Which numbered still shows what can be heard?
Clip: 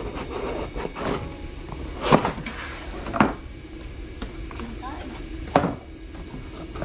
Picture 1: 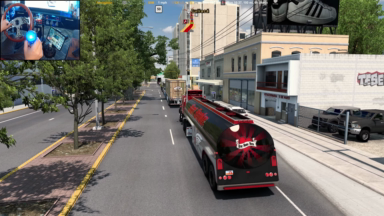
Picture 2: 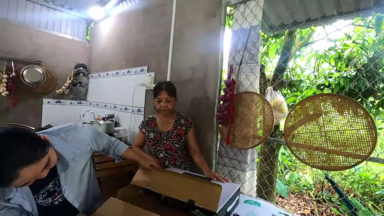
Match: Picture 2